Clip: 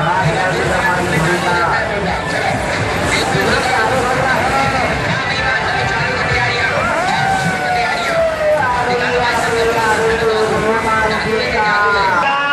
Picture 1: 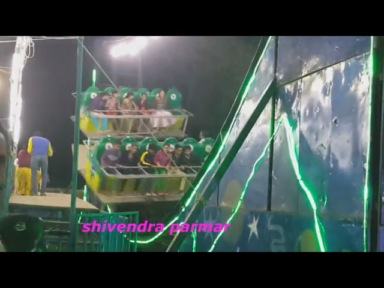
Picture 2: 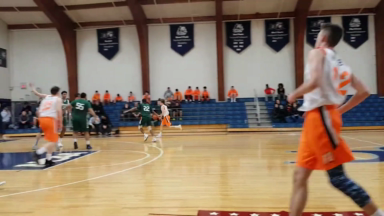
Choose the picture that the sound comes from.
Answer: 1